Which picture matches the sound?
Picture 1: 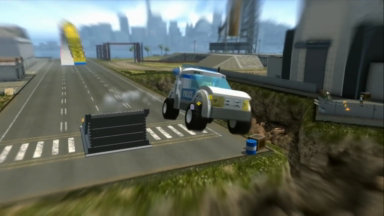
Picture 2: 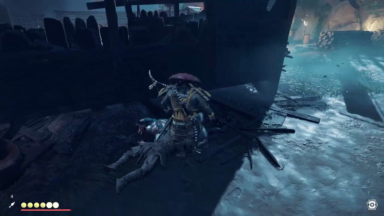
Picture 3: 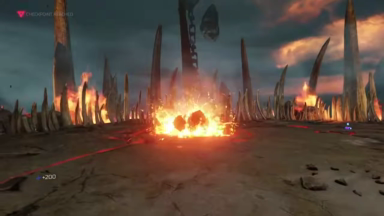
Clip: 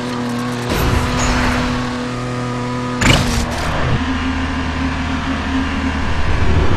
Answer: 1